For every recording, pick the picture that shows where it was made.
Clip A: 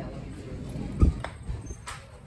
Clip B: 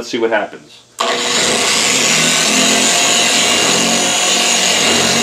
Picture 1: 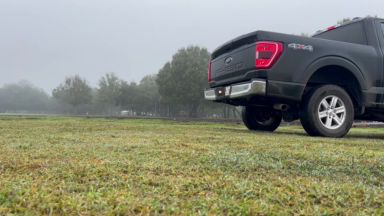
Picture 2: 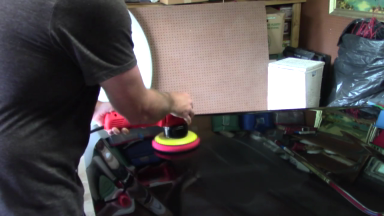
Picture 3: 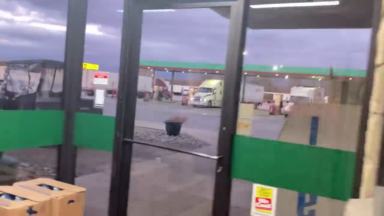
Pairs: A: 3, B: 2